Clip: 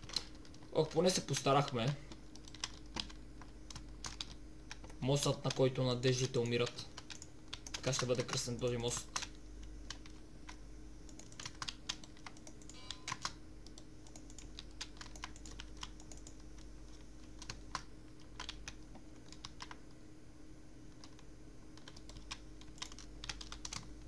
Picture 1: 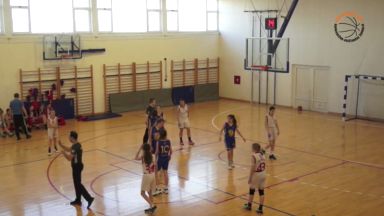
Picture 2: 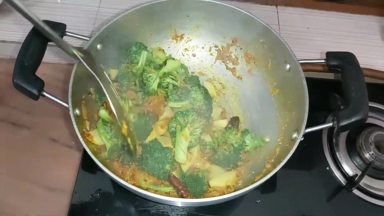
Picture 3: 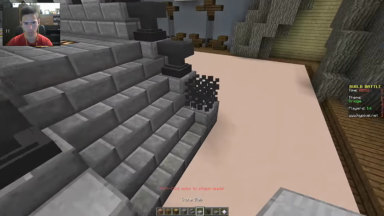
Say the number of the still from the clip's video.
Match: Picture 3